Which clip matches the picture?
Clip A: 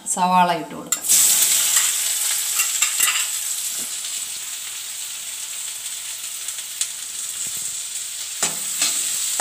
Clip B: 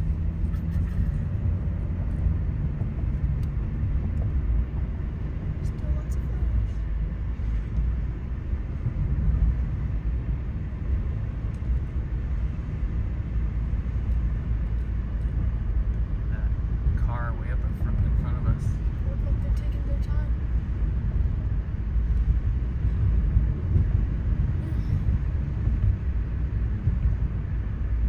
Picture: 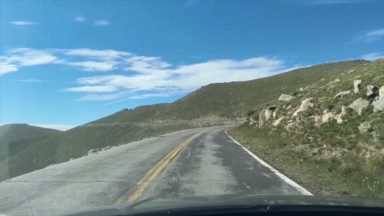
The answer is B